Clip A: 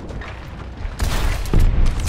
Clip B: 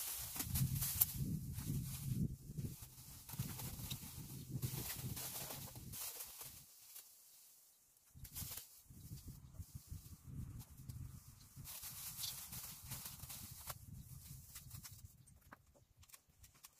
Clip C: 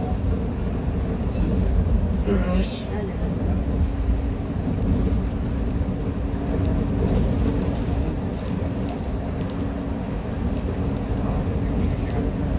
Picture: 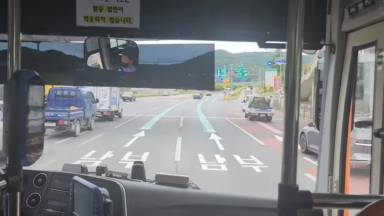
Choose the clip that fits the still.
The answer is C